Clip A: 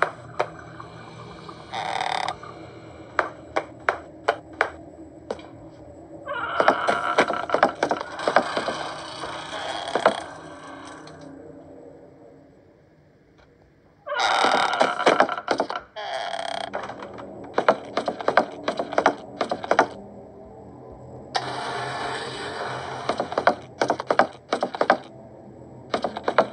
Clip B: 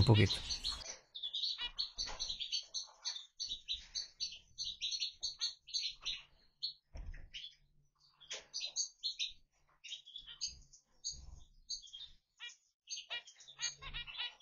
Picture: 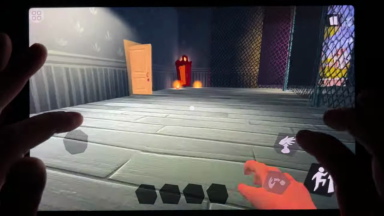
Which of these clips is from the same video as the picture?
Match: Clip A